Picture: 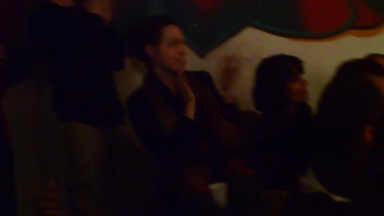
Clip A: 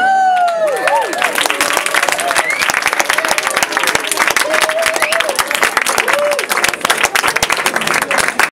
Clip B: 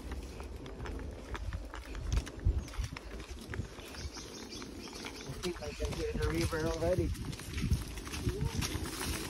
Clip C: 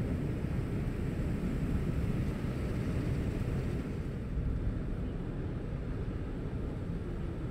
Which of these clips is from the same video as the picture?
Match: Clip A